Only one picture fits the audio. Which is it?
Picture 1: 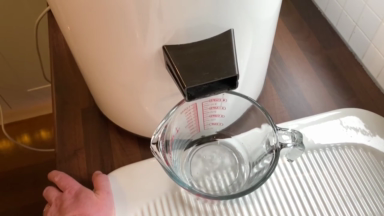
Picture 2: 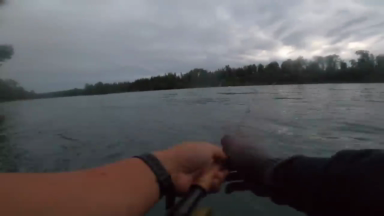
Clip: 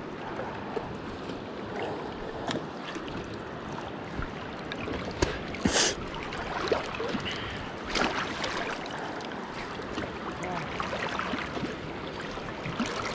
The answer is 2